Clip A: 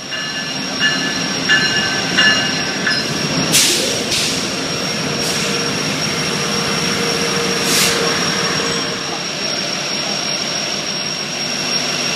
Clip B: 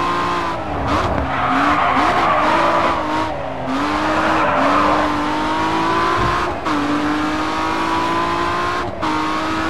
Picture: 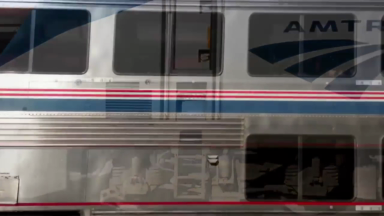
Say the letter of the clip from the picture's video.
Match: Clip A